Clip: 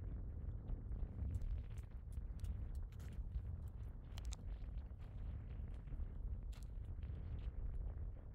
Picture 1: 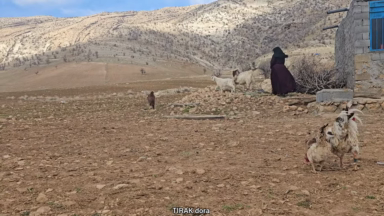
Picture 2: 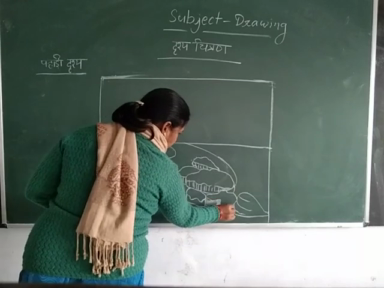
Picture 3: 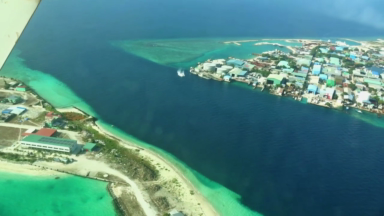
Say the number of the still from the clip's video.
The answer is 1